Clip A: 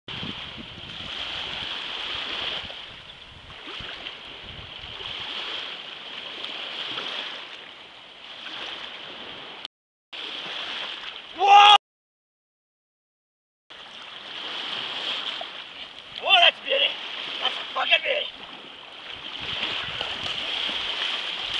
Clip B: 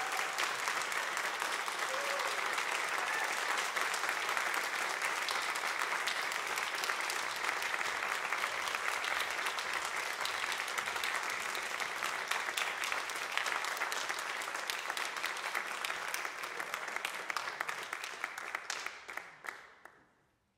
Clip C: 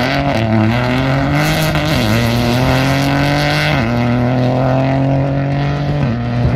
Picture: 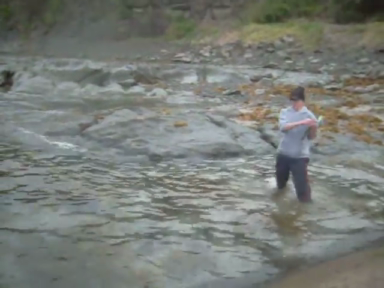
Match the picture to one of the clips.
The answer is A